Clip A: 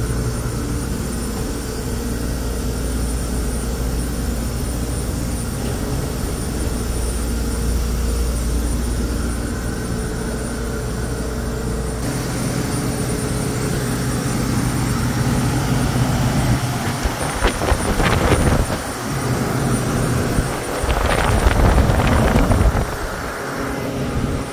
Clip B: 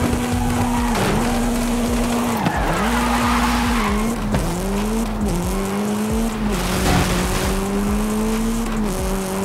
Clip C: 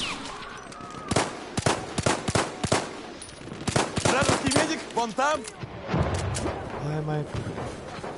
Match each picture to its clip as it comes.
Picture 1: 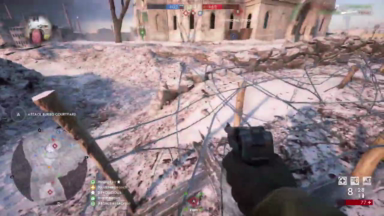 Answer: C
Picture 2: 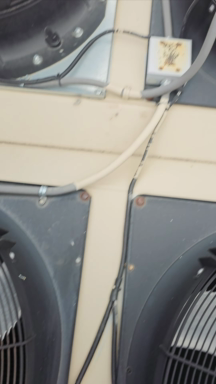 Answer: A